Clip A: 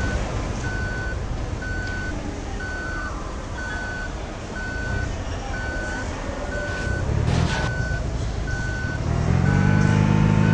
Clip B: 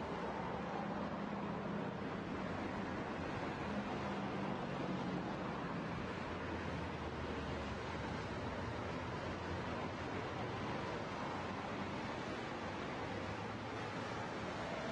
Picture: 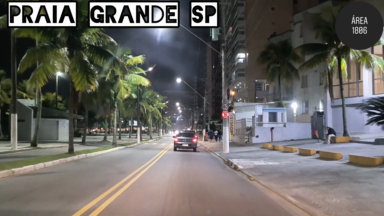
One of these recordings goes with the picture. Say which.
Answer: B